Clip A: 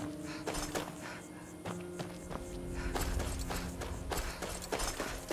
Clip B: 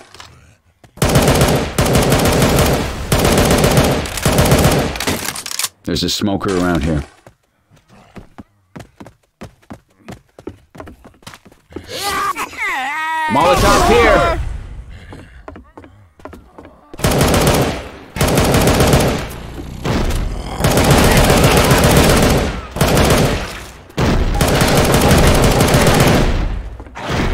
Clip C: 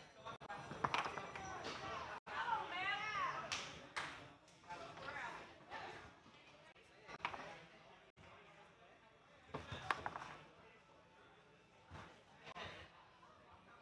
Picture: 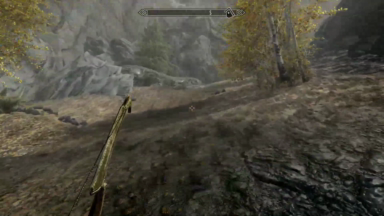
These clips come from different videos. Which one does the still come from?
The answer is A